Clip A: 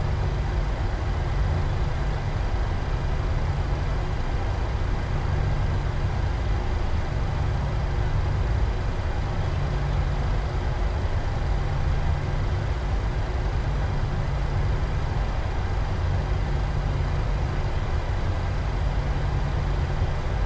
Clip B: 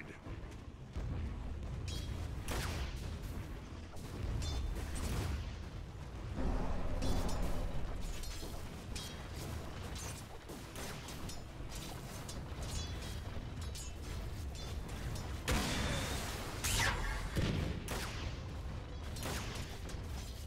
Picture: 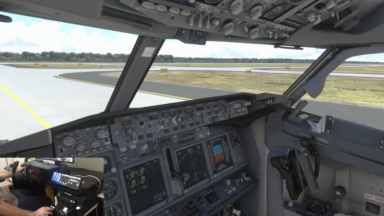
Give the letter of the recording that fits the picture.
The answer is A